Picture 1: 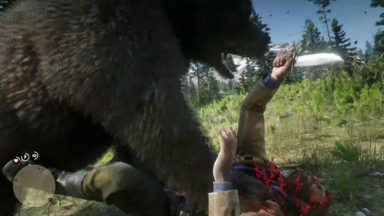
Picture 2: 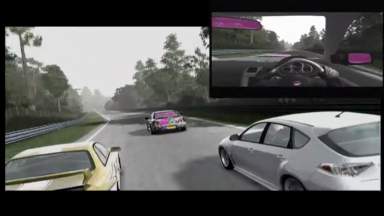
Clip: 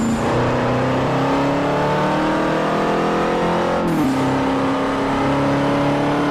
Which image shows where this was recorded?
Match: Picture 2